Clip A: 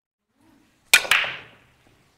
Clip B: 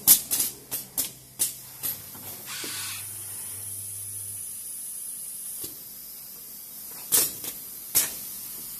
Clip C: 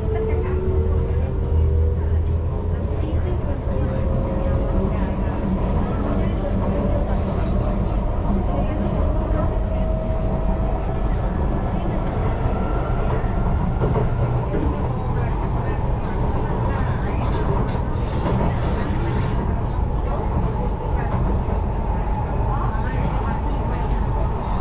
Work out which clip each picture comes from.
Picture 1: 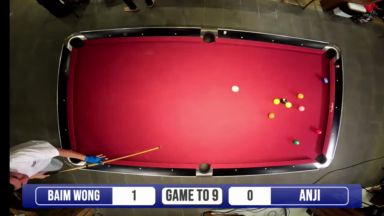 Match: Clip A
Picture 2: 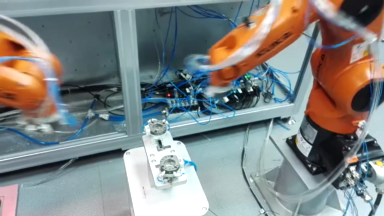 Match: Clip B